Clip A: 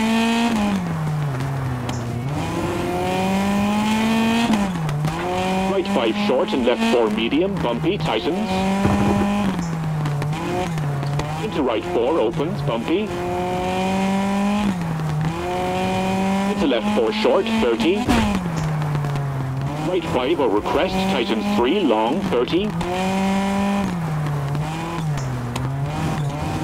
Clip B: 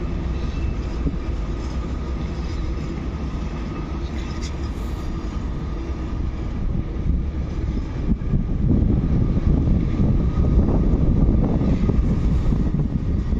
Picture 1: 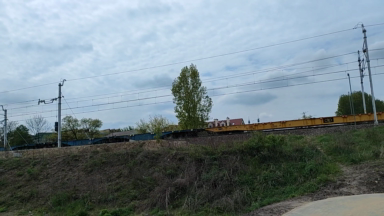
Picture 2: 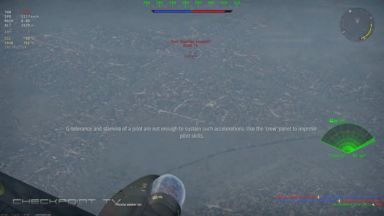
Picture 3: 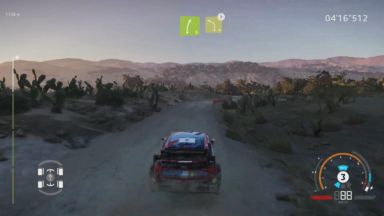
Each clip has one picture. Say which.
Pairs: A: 3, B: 1